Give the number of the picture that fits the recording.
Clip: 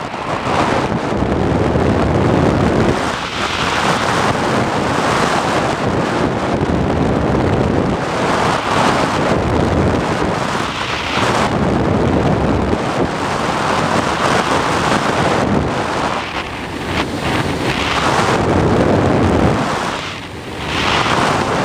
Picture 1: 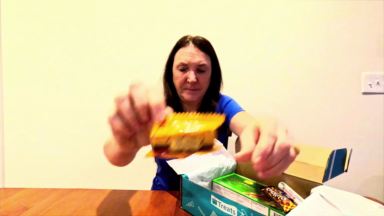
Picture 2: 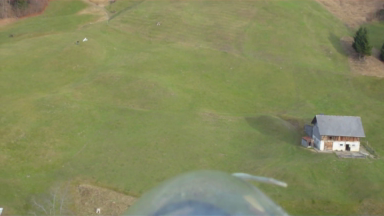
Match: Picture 2